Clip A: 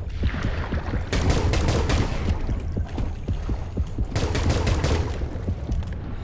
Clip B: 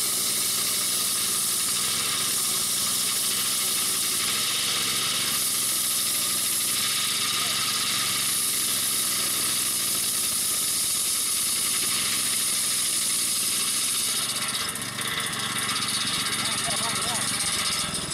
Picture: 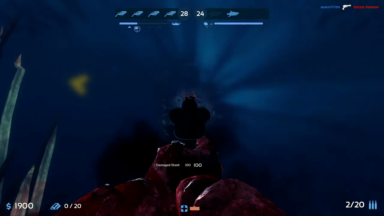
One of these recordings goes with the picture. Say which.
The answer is A